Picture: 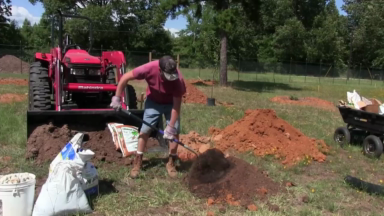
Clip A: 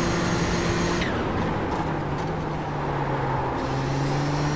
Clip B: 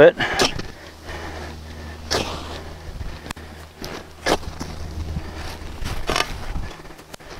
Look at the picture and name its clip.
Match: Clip B